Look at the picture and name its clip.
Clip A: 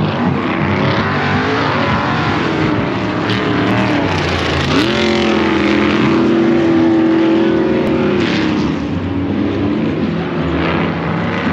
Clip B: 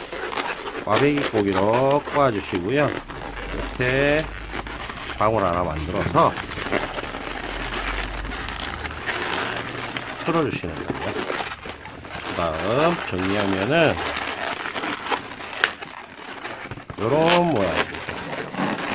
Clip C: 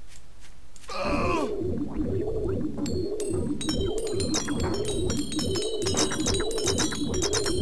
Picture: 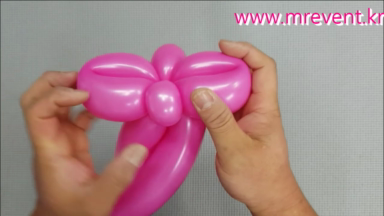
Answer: B